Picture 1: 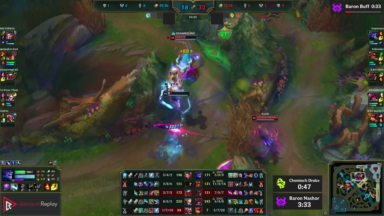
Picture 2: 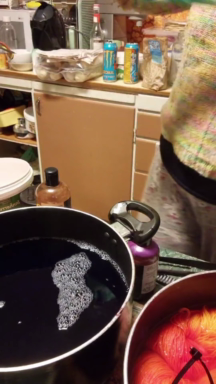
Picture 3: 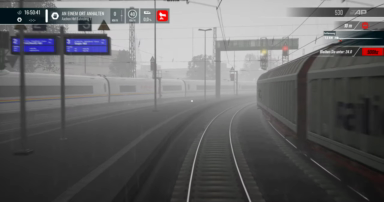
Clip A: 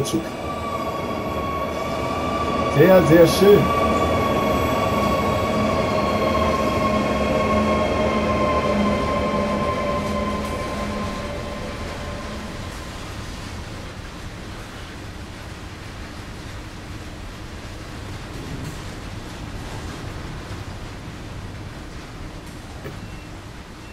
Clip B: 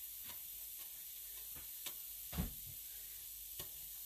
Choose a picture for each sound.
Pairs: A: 3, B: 2